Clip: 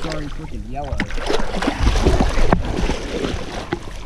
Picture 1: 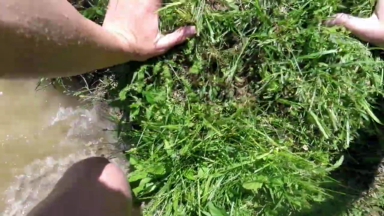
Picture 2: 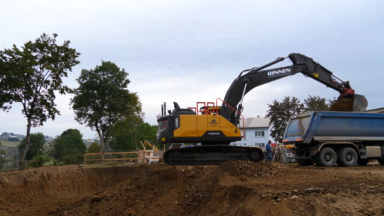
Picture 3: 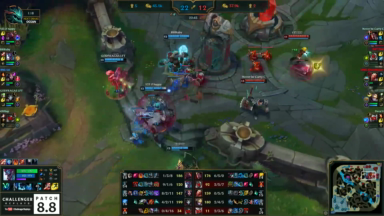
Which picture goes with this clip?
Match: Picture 1